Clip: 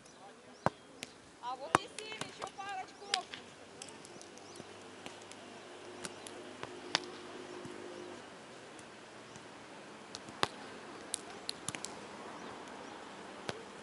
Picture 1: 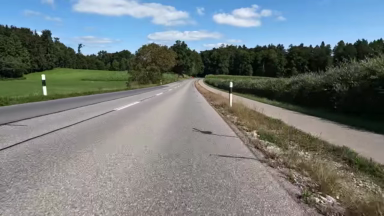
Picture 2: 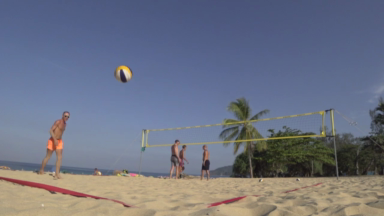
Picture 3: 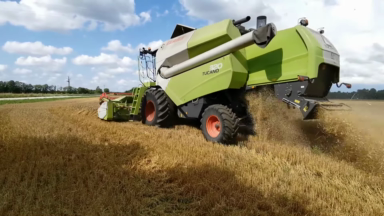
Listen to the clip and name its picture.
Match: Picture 2